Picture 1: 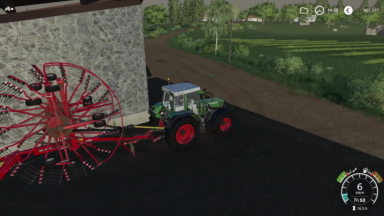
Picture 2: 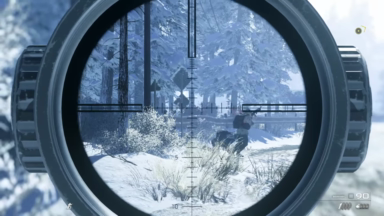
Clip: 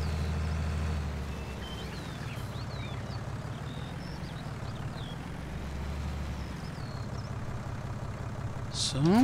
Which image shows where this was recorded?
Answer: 1